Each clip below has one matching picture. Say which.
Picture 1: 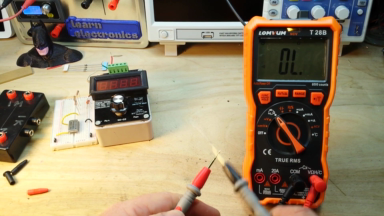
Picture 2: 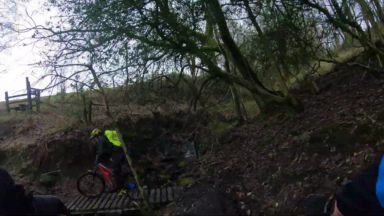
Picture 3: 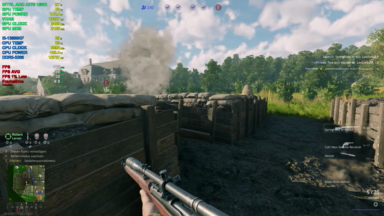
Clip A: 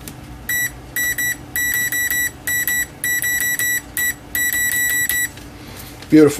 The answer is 1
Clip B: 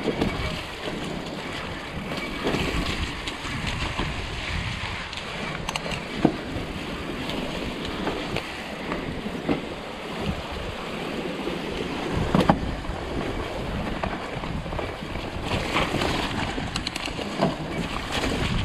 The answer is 2